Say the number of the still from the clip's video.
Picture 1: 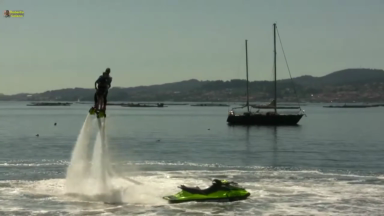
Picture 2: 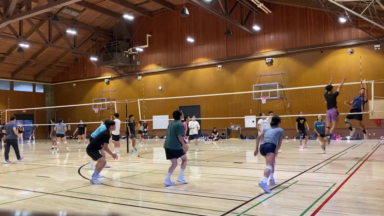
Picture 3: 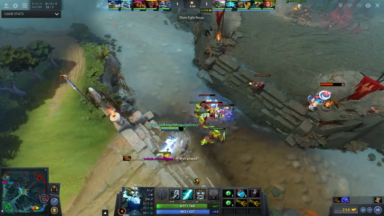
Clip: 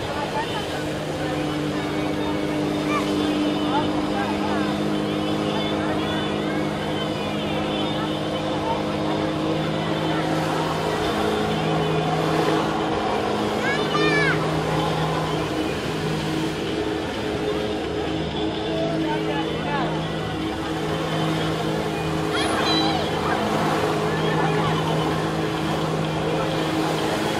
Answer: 1